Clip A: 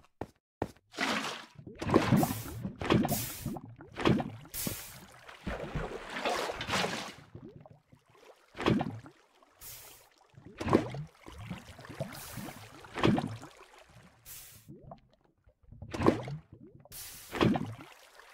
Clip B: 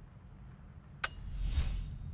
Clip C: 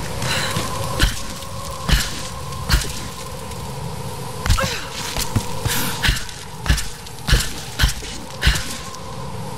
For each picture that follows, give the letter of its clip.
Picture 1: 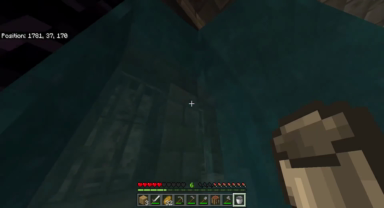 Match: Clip A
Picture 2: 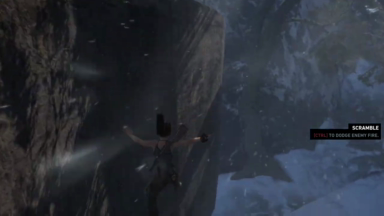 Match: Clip C